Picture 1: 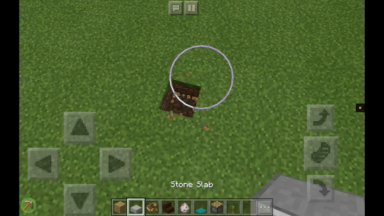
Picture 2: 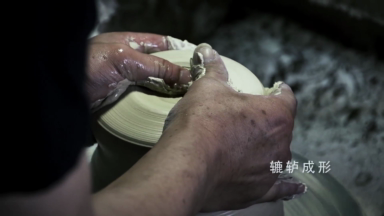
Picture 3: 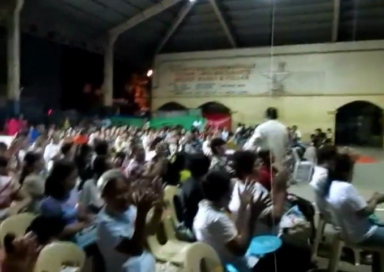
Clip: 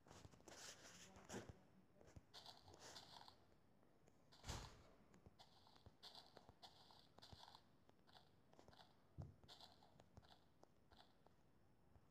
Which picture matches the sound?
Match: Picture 1